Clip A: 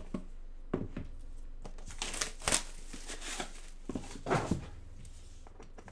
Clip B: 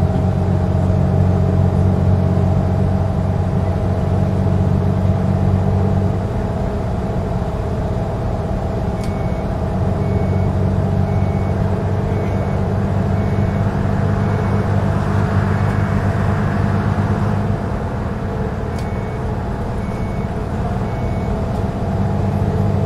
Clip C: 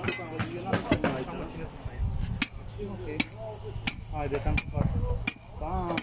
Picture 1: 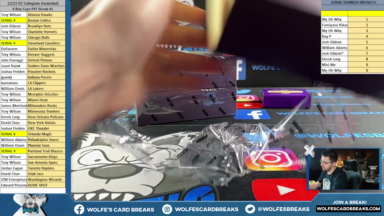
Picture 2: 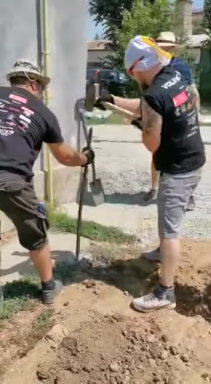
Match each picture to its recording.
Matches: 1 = A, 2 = C